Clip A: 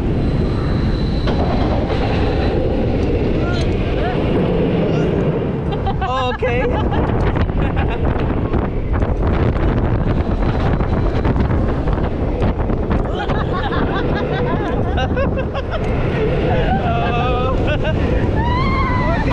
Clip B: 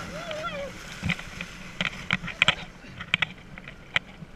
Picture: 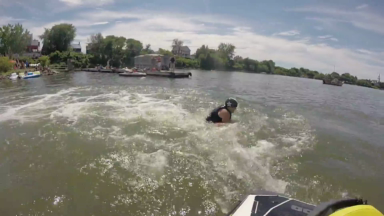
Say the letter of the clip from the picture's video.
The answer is B